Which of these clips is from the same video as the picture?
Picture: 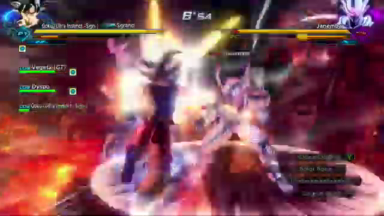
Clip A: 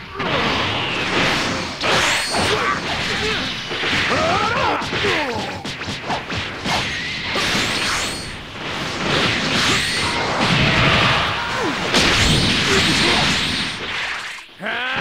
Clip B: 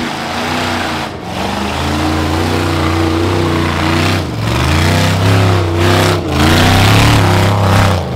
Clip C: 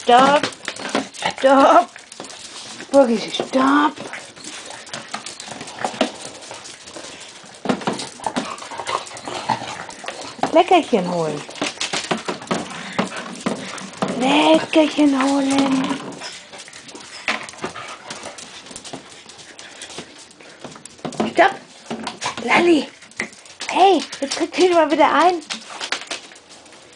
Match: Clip A